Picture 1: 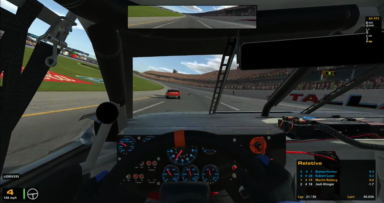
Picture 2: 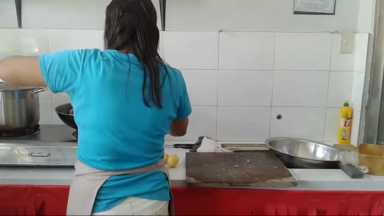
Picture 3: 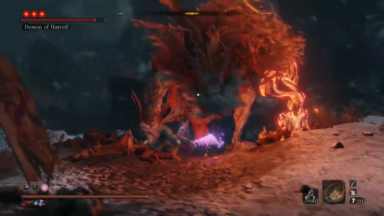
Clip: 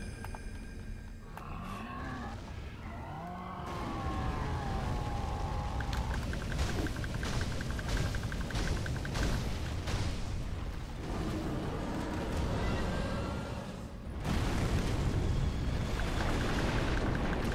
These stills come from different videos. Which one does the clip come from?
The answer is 3